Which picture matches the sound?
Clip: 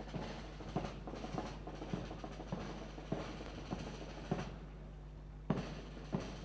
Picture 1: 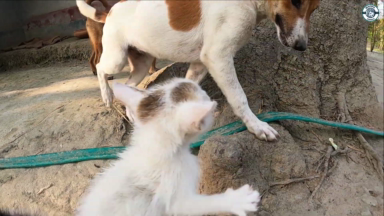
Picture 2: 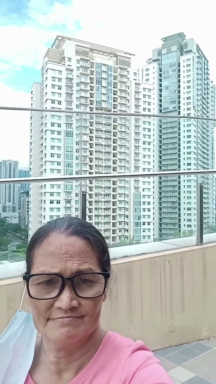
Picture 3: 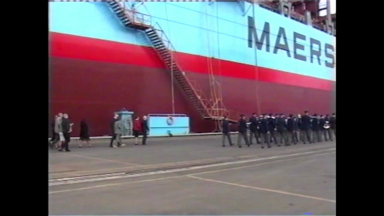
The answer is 3